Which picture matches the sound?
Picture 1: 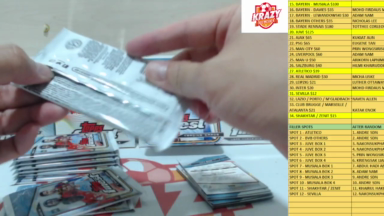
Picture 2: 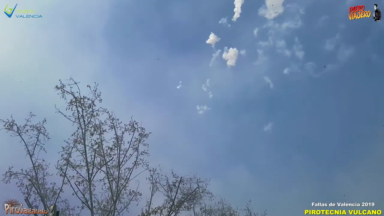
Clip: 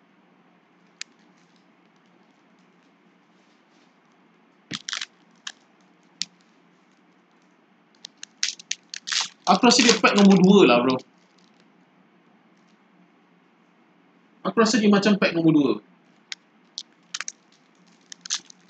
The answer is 1